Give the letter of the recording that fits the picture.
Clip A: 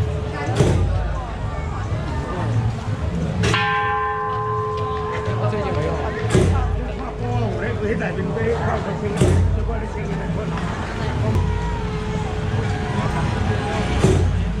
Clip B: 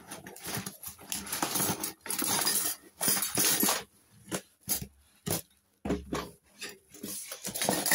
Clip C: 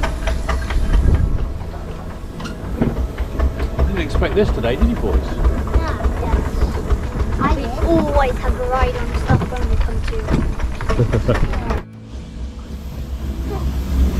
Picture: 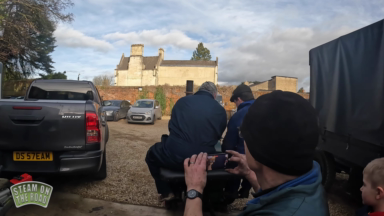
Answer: C